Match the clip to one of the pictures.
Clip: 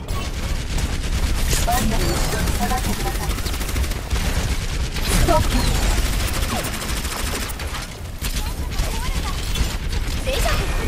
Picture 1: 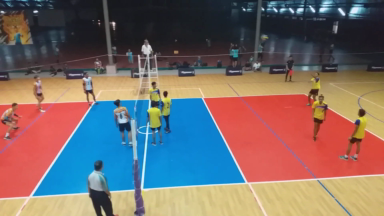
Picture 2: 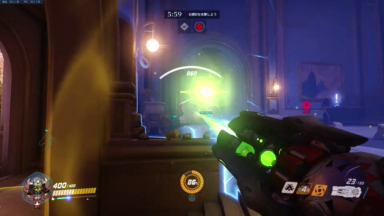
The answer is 2